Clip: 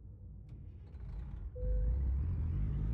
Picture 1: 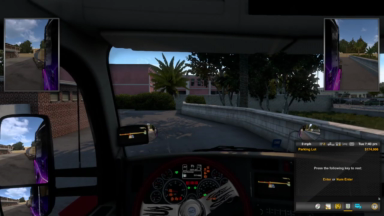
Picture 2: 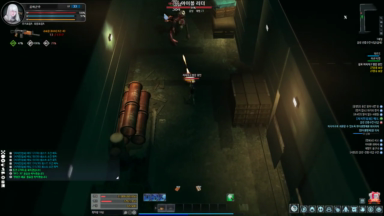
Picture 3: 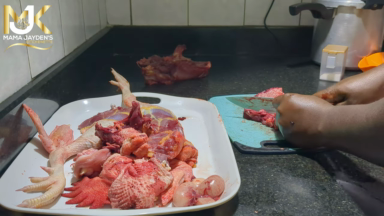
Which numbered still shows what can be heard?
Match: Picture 1